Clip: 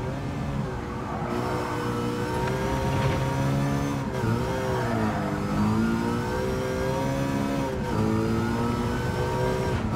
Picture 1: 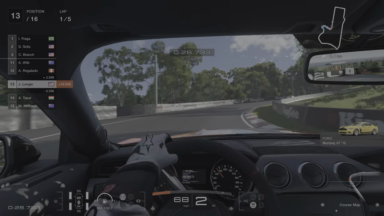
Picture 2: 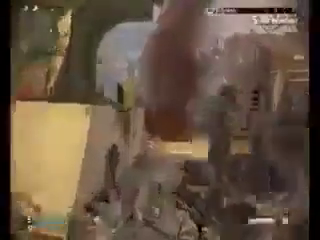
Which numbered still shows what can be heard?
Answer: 1